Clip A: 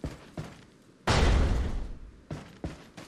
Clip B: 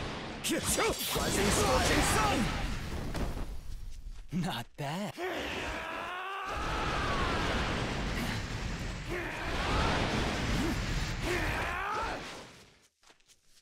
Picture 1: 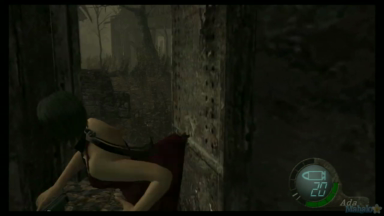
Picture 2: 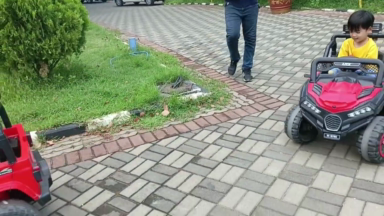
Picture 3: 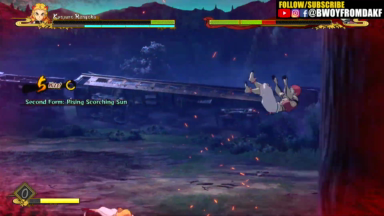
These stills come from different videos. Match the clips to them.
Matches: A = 1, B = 3